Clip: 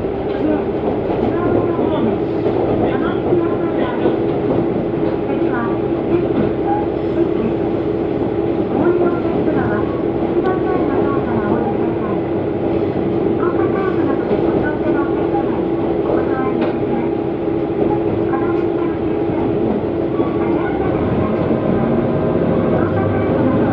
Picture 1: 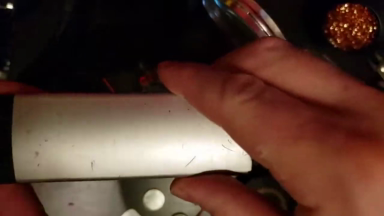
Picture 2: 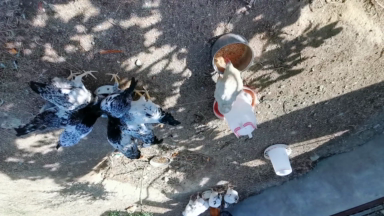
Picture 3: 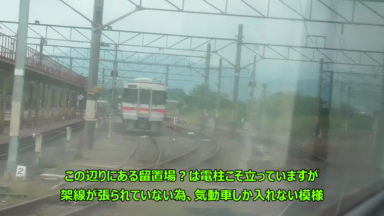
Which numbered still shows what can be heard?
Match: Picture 3